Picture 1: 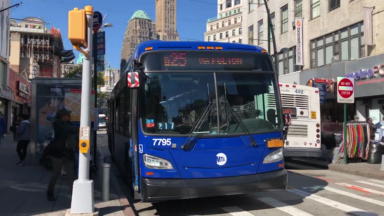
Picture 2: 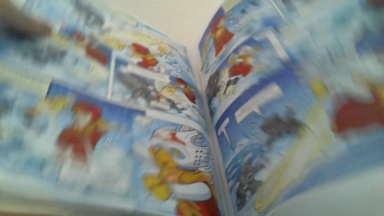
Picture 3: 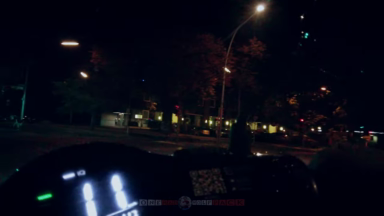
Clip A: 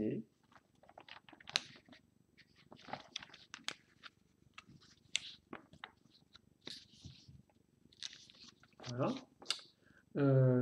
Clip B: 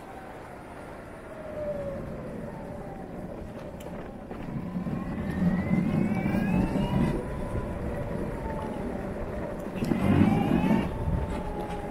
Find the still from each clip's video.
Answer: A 2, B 3